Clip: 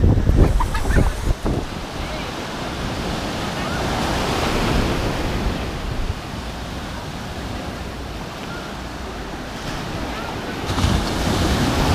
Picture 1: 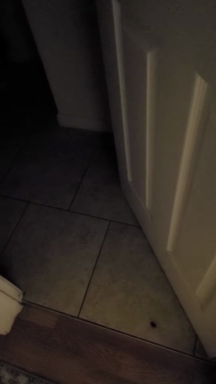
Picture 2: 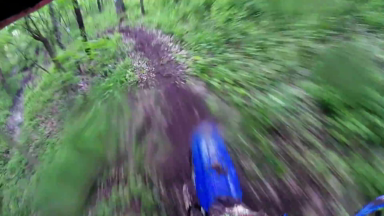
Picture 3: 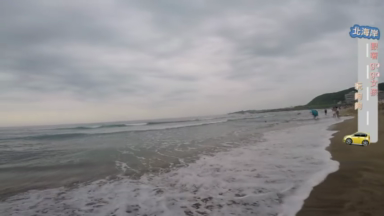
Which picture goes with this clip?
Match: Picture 3